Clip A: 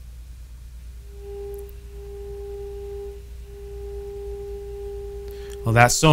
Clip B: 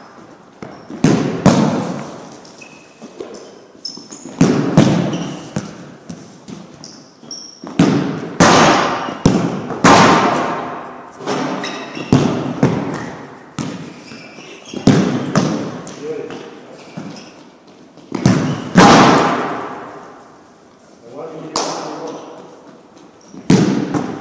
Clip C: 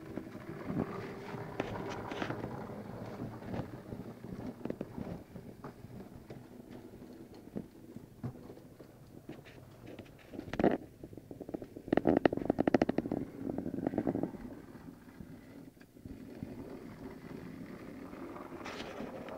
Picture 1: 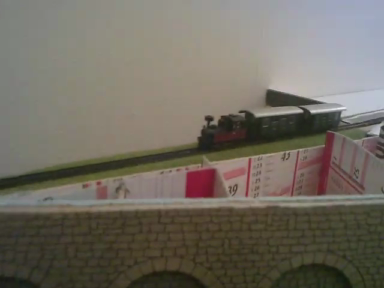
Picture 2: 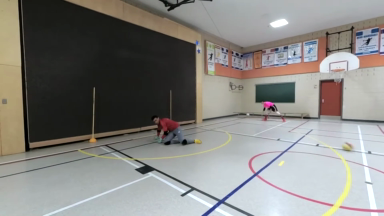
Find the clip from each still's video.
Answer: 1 C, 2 B